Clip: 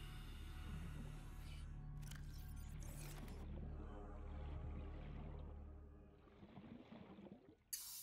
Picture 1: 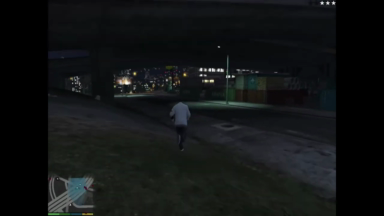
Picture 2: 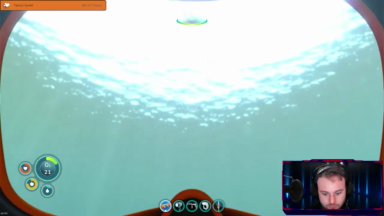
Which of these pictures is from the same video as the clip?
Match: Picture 2